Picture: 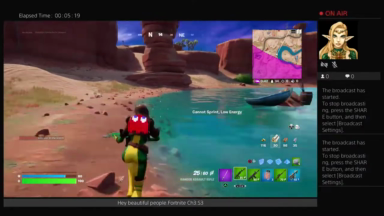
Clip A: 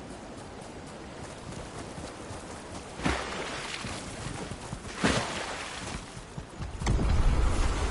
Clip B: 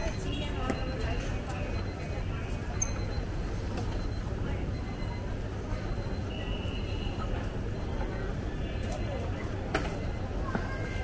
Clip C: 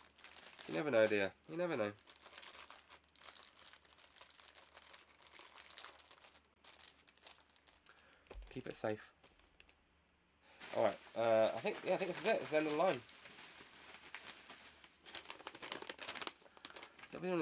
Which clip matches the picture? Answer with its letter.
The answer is A